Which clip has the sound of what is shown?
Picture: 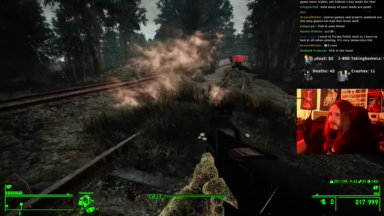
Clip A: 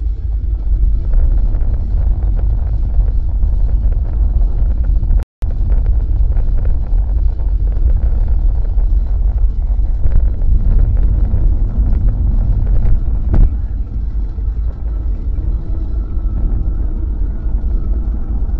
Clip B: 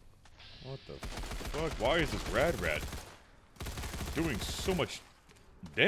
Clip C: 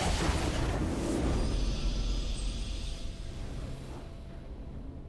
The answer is B